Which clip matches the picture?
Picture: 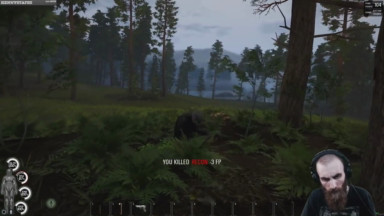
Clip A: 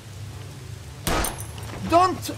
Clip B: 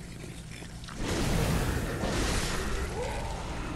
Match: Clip A